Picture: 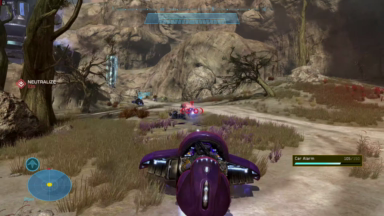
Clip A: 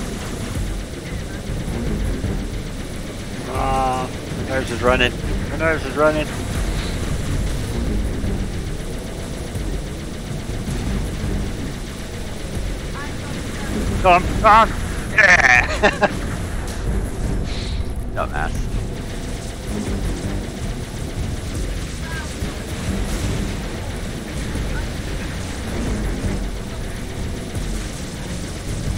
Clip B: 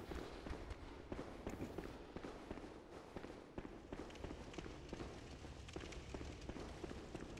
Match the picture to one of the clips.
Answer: A